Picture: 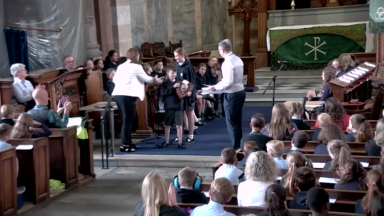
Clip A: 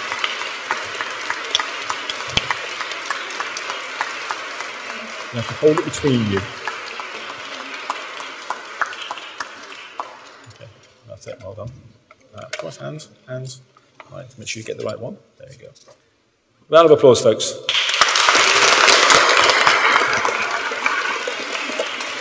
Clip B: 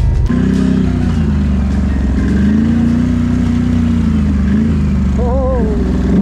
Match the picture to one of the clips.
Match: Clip A